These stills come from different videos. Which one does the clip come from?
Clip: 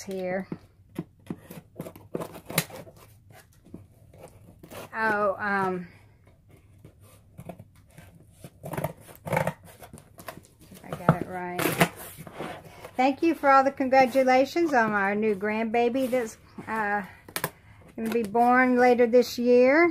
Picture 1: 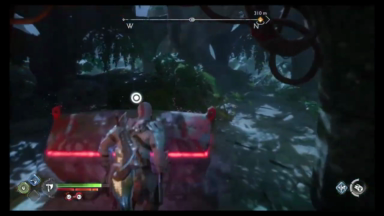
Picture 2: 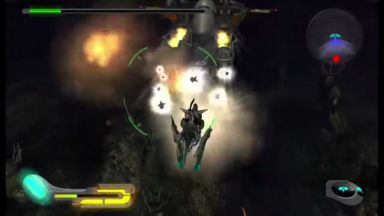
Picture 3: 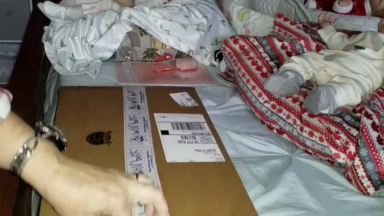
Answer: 3